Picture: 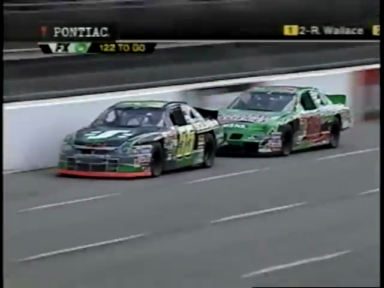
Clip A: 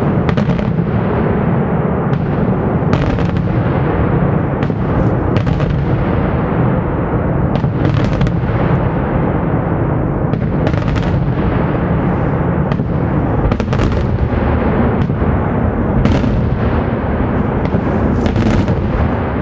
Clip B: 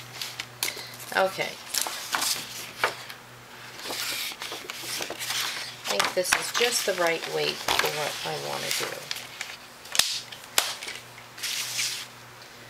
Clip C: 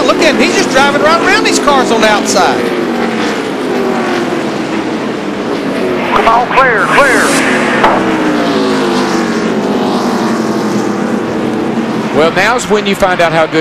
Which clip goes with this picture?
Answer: C